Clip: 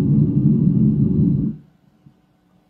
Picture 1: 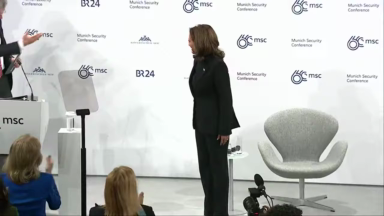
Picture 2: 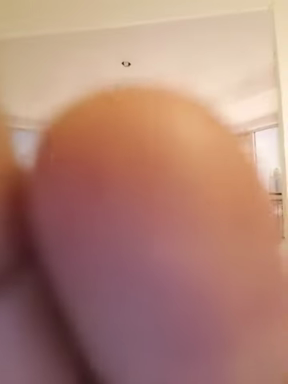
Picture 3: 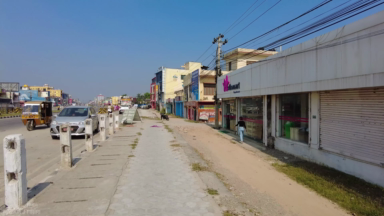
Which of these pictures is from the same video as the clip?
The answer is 2